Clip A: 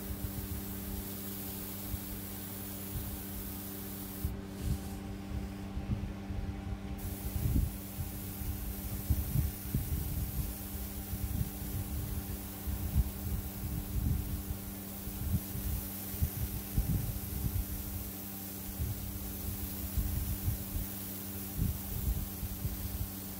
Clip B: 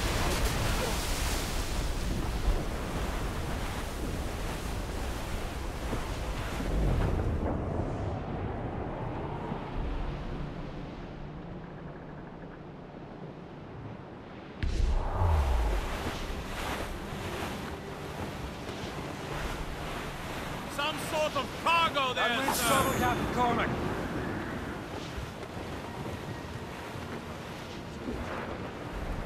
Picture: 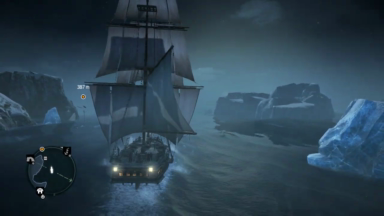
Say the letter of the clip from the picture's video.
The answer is B